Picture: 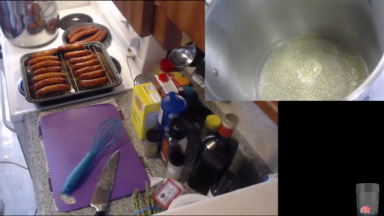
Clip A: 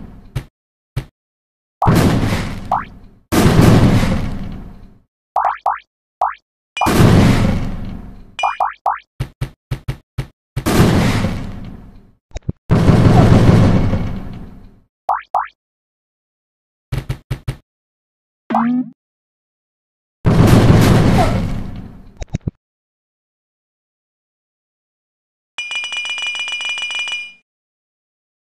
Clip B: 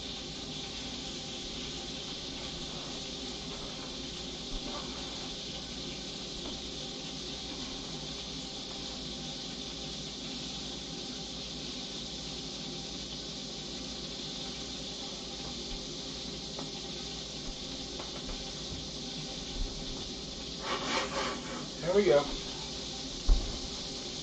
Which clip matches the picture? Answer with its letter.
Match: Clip B